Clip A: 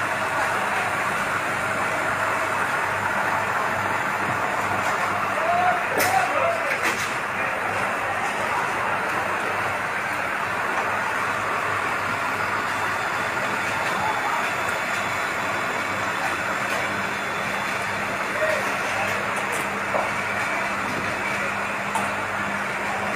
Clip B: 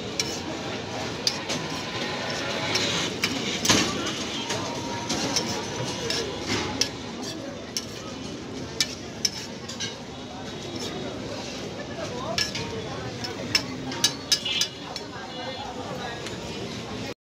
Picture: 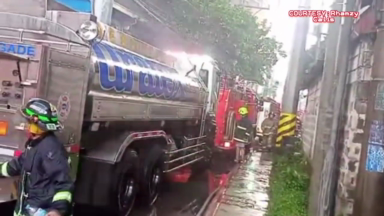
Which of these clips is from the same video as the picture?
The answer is A